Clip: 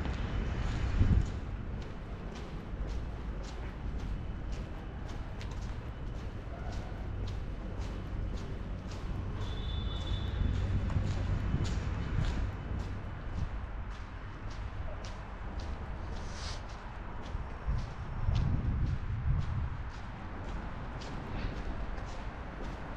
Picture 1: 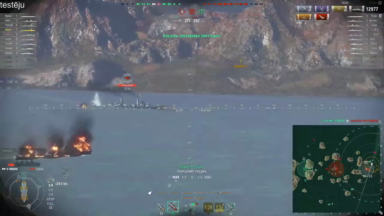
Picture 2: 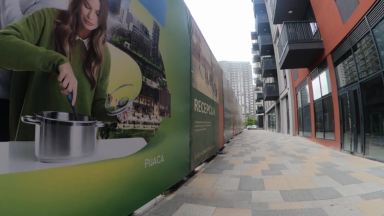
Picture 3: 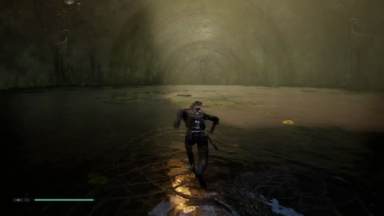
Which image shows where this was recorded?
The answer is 2